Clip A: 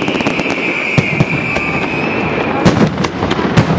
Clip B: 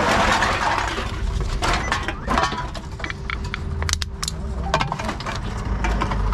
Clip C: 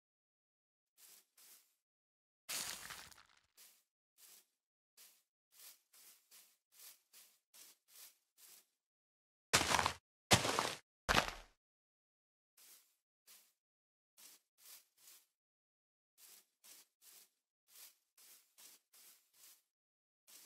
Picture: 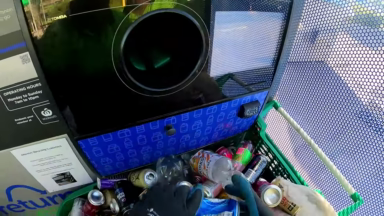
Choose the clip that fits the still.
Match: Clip B